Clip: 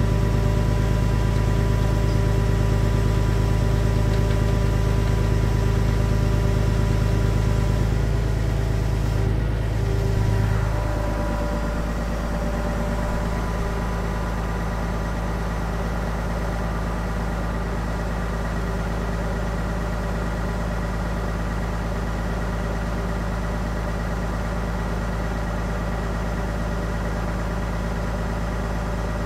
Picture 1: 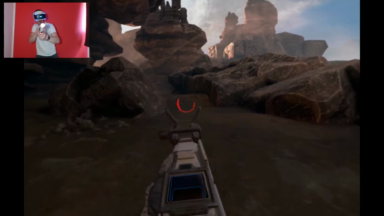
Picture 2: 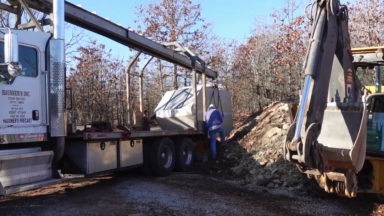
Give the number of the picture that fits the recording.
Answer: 2